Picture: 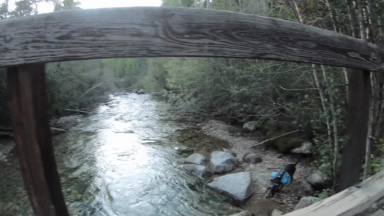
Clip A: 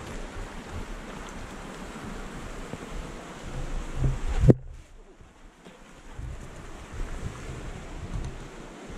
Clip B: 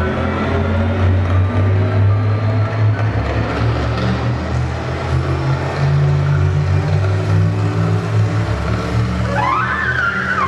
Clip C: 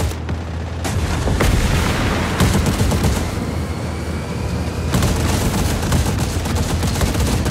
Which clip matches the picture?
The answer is A